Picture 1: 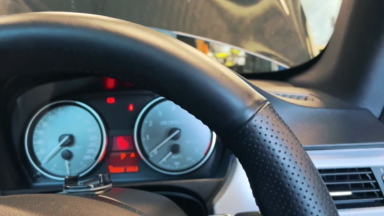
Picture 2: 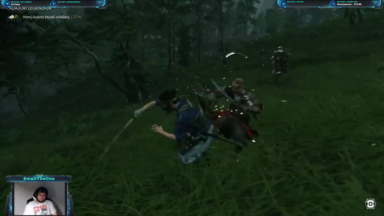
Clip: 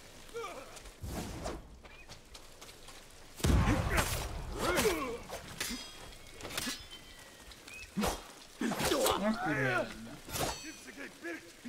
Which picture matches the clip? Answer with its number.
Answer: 2